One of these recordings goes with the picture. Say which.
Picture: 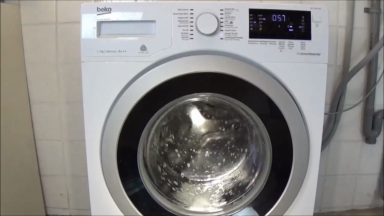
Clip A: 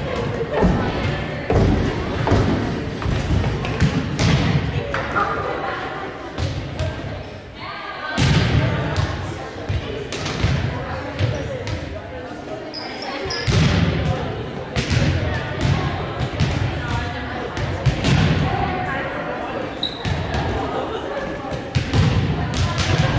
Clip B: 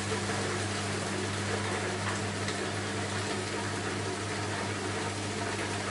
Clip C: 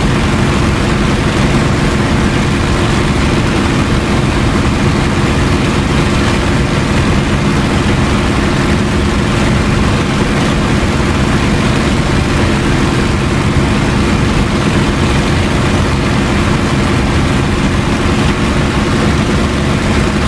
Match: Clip B